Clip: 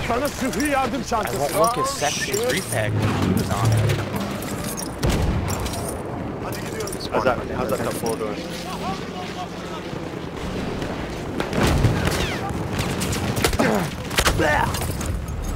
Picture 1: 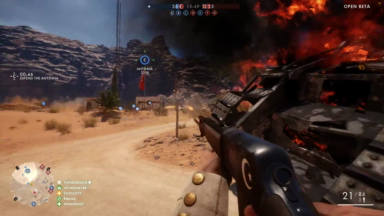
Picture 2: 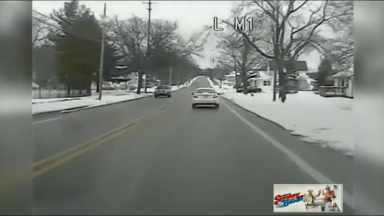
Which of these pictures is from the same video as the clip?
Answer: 1